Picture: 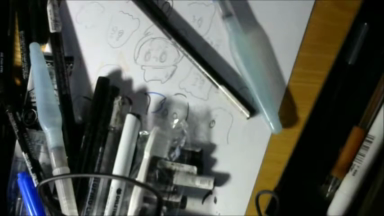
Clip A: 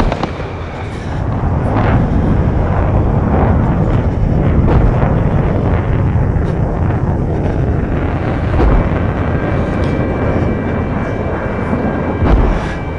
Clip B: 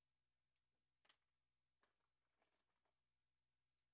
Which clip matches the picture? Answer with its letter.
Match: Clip B